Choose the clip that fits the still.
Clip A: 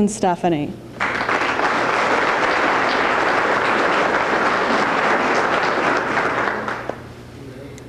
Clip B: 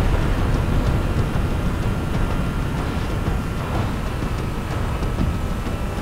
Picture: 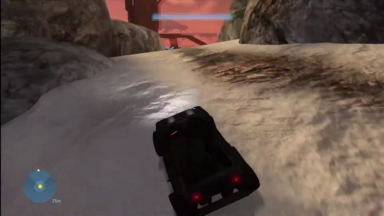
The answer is B